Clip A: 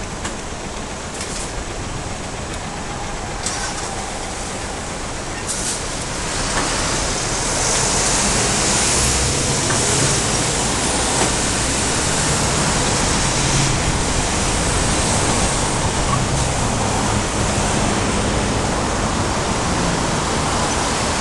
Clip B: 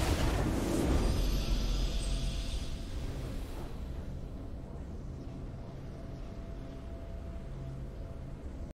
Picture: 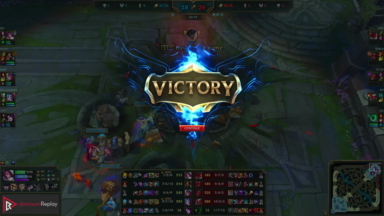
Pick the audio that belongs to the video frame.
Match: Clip B